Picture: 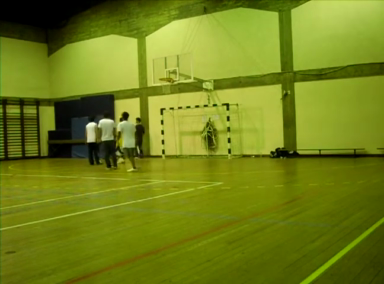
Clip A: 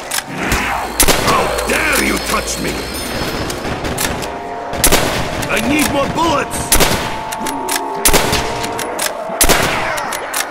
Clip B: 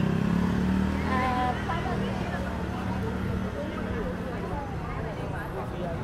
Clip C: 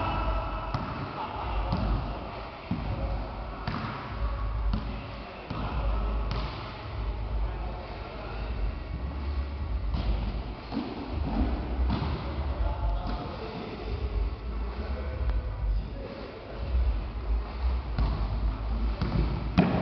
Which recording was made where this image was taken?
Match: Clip C